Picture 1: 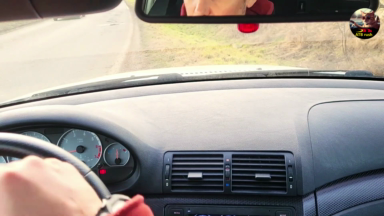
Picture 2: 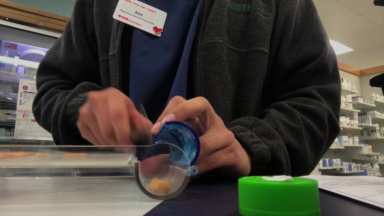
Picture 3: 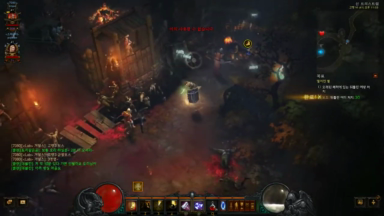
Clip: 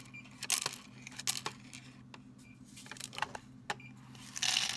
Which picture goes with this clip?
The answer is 2